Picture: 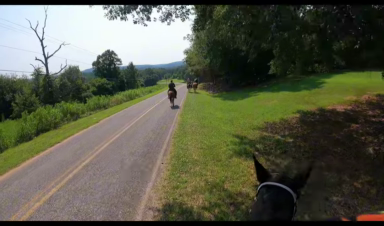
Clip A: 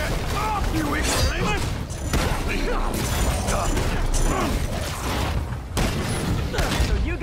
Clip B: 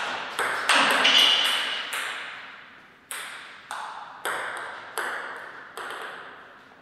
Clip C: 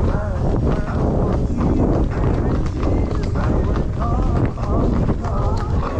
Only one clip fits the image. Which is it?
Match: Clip C